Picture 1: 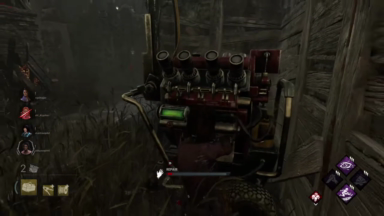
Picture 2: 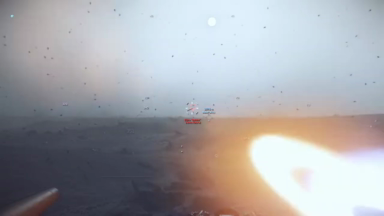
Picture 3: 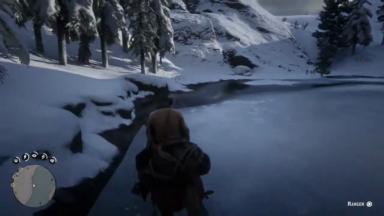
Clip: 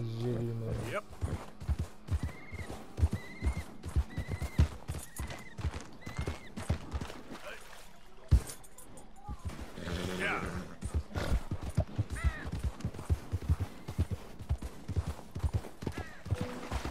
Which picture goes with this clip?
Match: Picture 3